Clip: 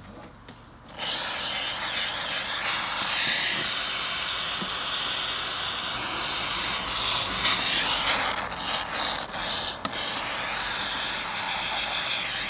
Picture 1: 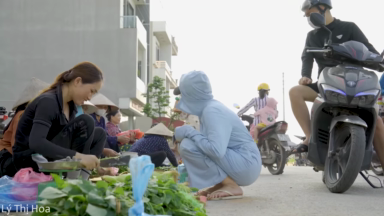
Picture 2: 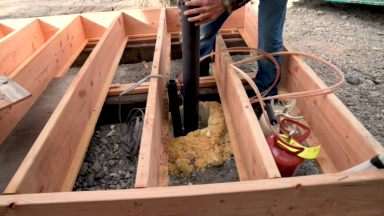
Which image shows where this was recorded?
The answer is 2